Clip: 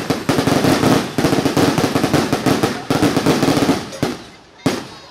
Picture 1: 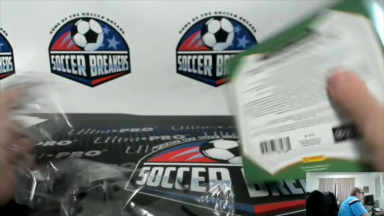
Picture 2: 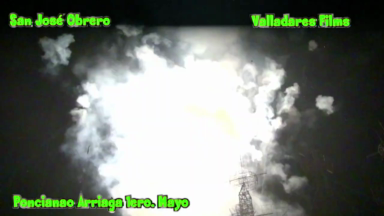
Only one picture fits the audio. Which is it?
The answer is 2